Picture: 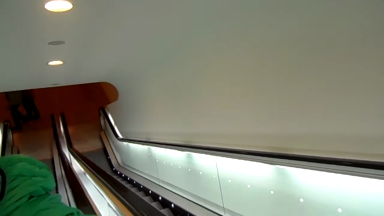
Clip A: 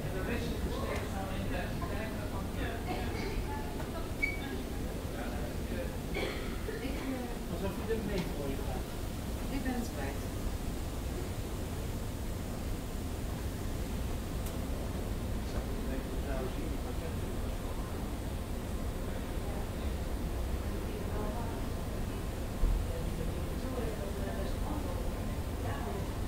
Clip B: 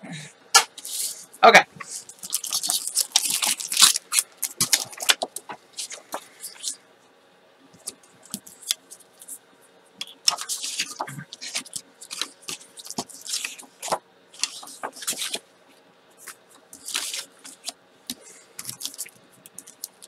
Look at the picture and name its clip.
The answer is A